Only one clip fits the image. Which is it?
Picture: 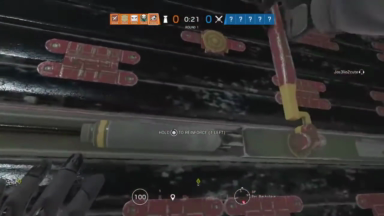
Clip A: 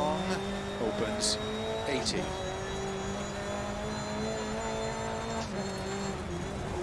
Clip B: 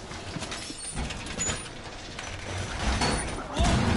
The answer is B